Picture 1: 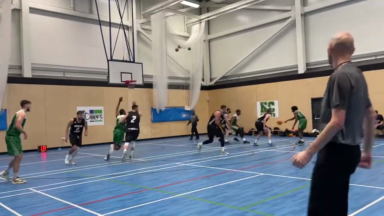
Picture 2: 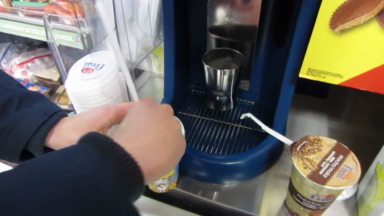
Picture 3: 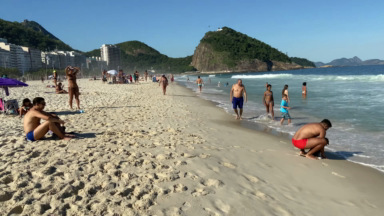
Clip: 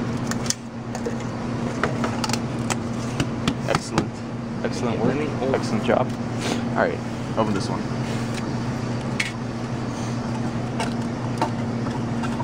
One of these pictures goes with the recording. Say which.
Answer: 2